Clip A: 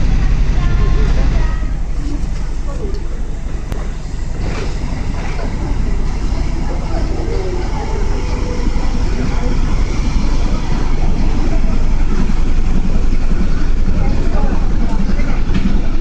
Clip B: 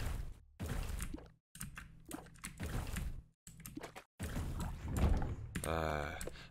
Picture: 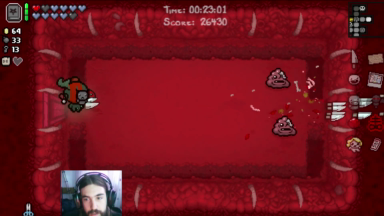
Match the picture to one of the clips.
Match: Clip B